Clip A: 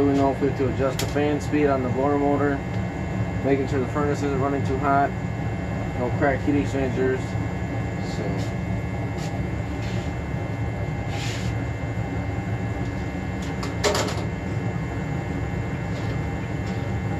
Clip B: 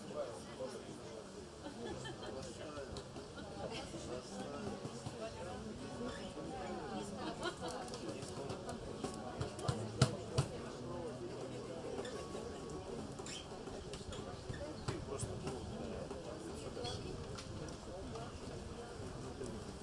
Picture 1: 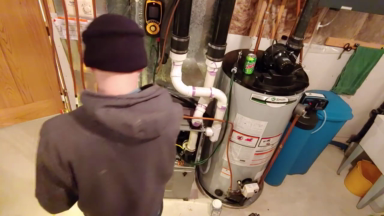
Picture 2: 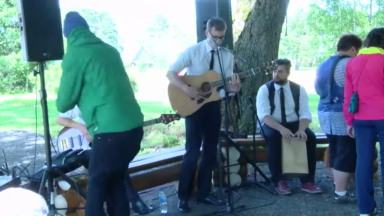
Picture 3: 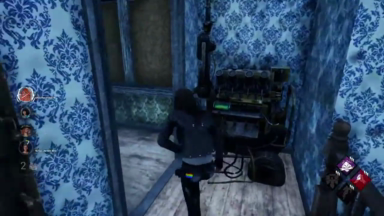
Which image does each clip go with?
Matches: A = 1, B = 2